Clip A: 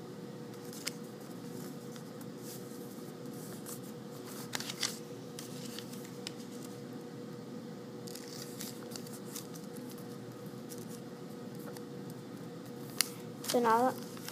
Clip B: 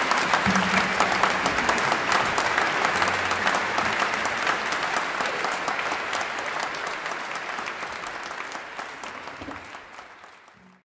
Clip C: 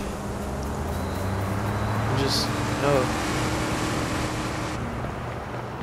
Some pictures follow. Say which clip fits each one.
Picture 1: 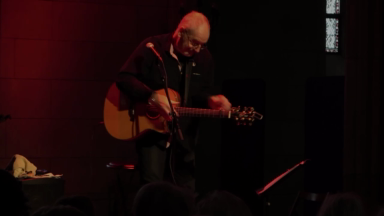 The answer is B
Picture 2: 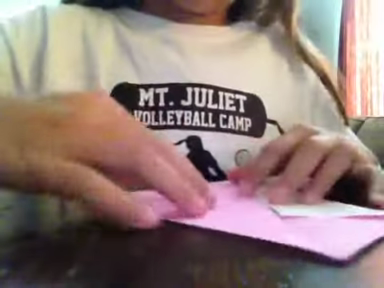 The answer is A